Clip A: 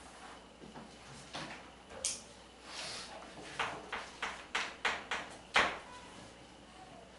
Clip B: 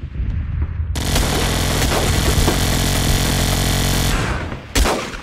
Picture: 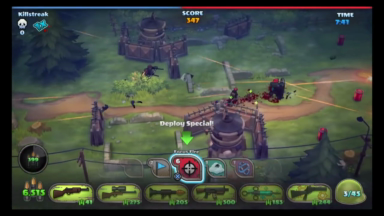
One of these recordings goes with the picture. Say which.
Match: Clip B